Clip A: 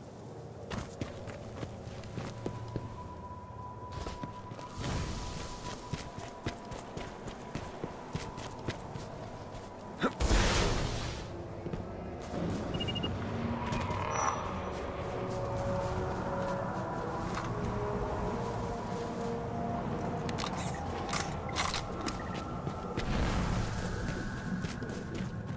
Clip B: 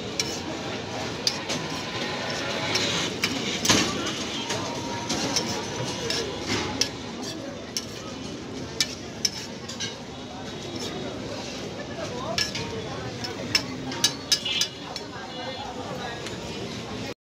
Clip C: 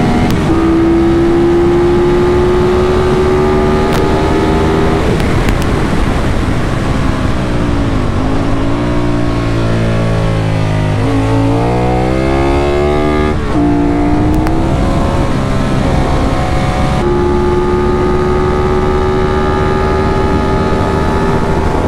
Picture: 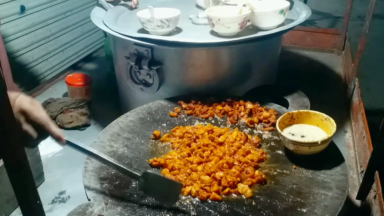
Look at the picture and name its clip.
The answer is B